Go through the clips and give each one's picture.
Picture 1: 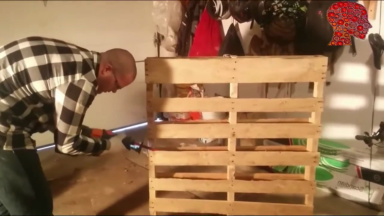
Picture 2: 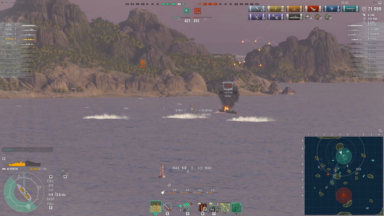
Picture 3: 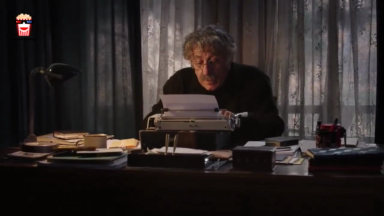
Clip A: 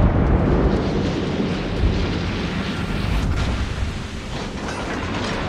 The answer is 2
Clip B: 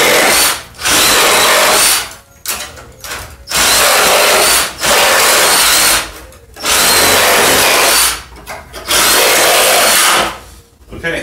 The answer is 1